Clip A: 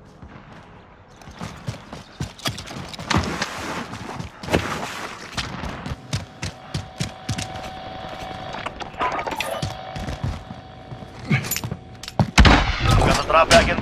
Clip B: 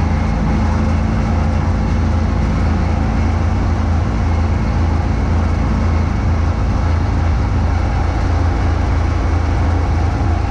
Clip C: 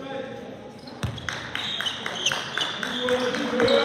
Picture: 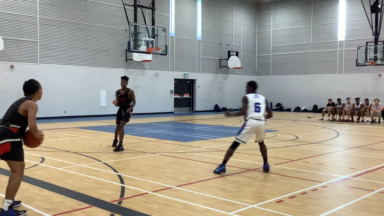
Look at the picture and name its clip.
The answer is C